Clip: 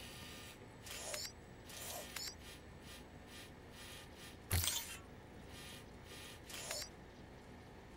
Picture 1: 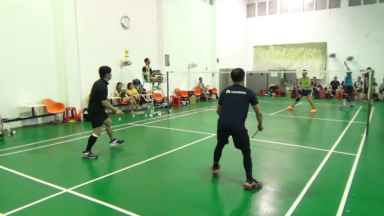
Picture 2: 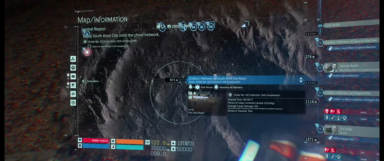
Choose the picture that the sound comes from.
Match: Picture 2